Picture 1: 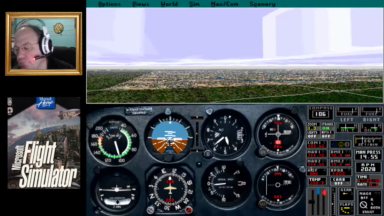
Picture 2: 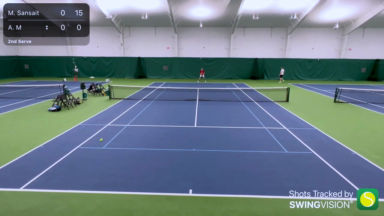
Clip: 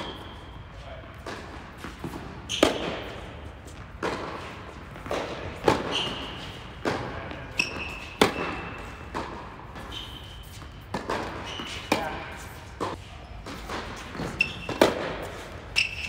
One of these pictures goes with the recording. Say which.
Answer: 2